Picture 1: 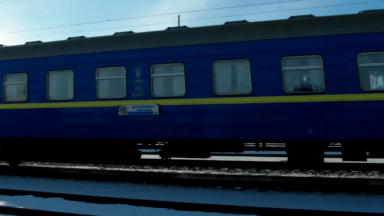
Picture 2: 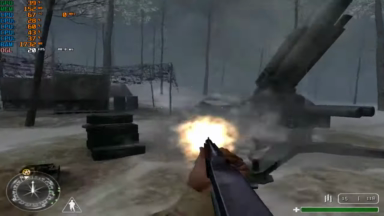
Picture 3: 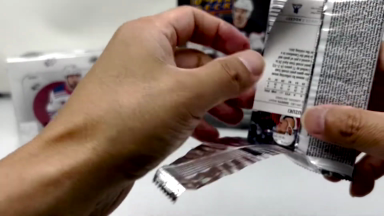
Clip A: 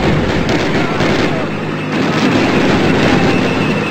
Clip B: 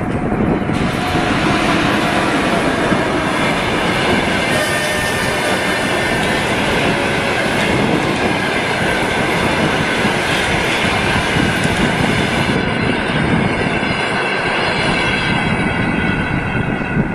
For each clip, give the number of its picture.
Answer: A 2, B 1